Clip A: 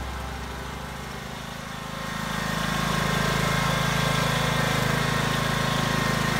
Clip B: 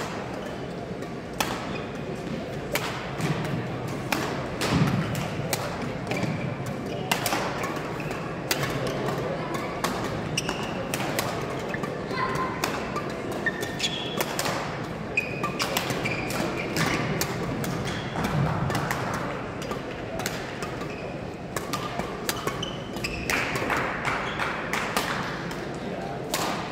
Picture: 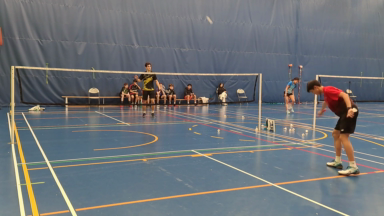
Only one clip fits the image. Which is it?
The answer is B